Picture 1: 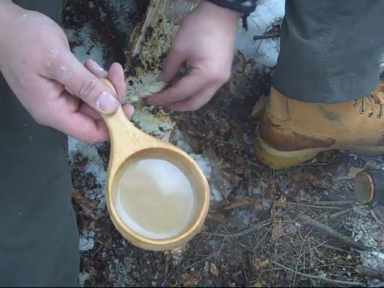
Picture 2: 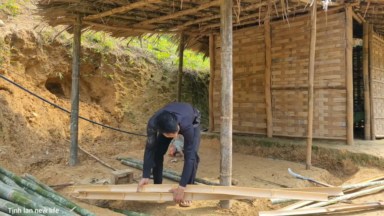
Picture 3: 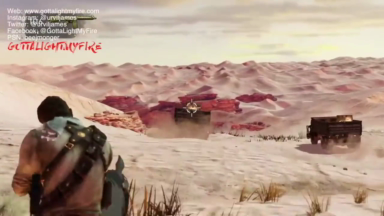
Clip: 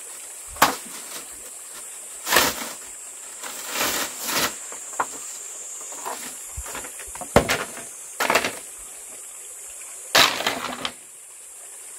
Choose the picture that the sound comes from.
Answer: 2